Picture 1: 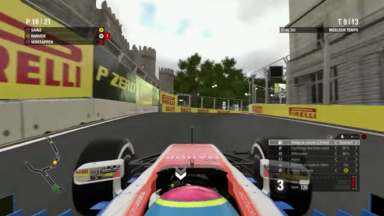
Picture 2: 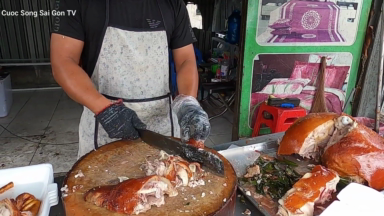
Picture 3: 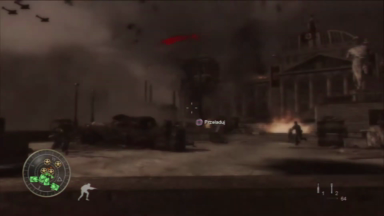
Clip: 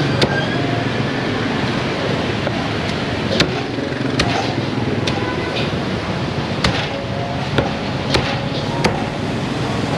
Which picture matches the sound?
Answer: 2